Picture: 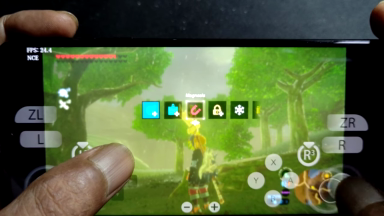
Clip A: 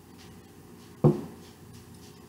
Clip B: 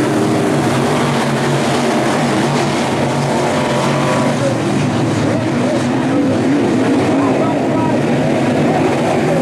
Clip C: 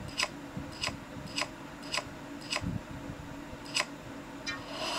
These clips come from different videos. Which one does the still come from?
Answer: C